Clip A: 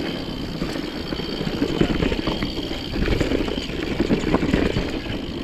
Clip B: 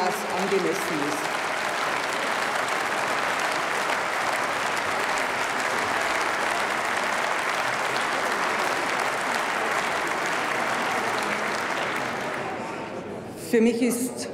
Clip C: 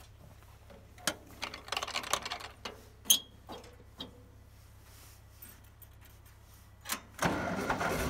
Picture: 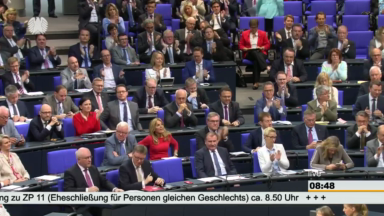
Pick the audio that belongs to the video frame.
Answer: B